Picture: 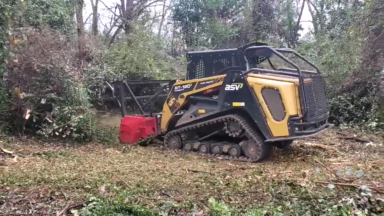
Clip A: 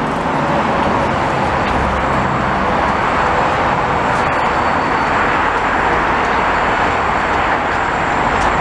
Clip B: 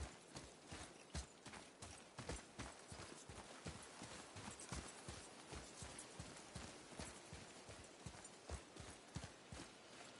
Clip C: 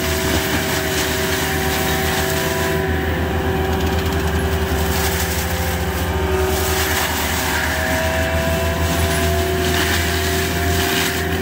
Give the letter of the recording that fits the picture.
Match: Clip C